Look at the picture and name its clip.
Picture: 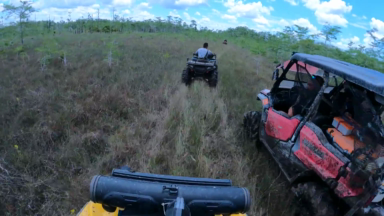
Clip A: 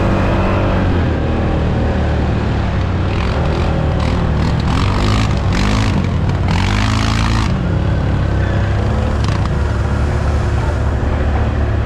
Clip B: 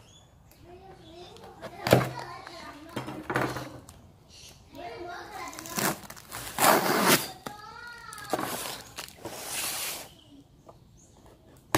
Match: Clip A